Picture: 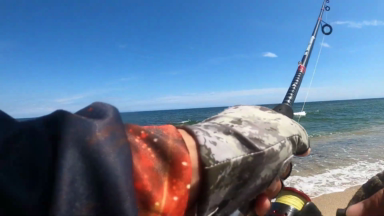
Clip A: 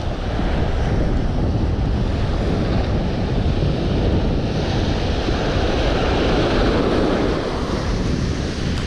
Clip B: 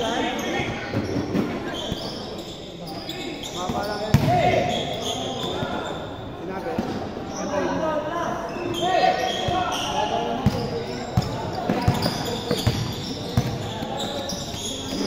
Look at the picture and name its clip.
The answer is A